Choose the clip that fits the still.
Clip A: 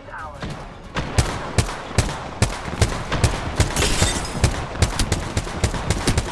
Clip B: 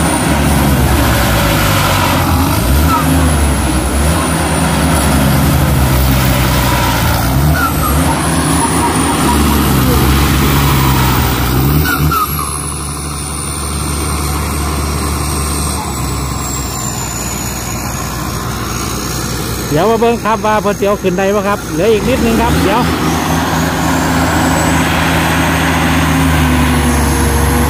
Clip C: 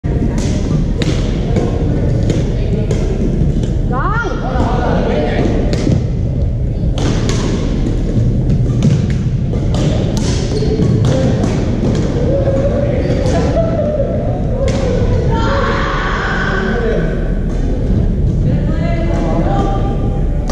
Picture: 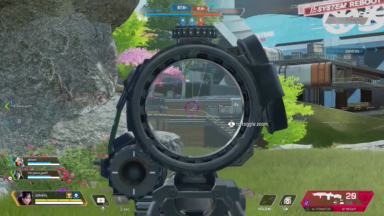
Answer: A